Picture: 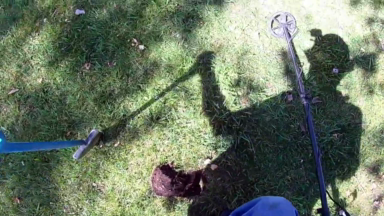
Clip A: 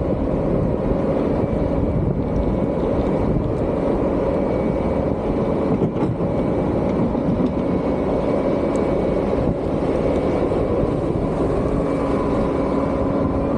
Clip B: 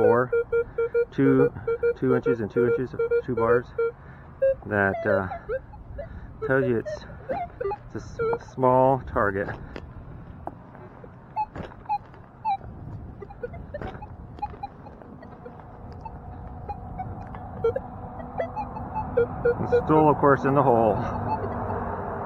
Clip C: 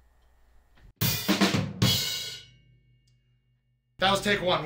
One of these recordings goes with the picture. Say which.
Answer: B